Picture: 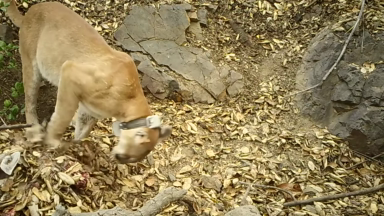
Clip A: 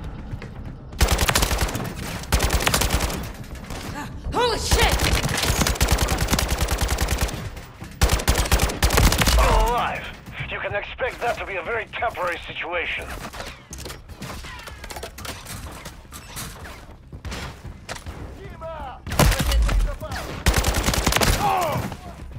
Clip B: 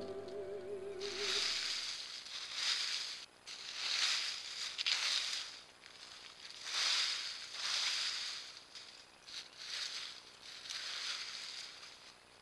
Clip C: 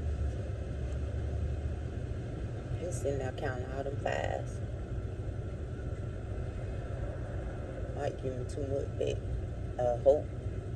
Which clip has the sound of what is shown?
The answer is B